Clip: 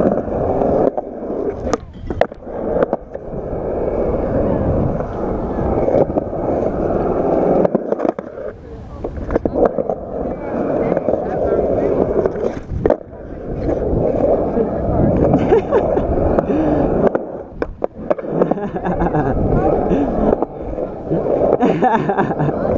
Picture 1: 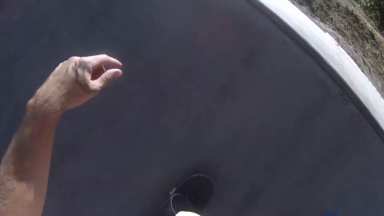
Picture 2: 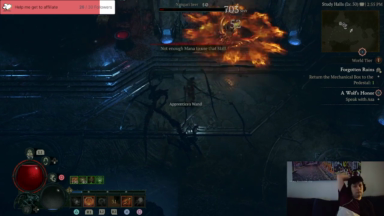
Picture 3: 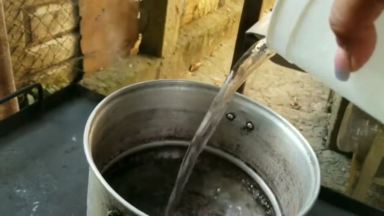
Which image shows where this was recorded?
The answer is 1